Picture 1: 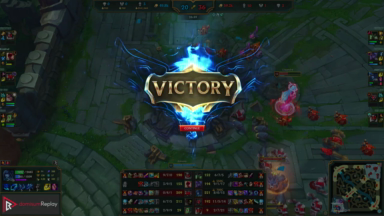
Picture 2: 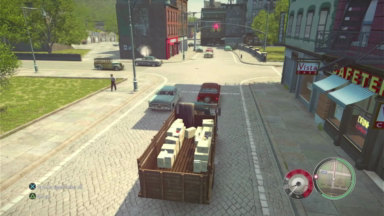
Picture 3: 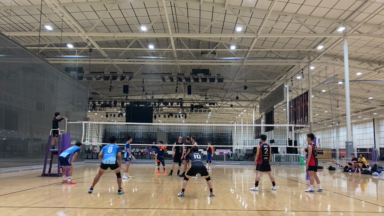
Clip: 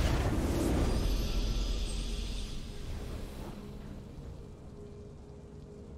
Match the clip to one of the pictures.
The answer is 1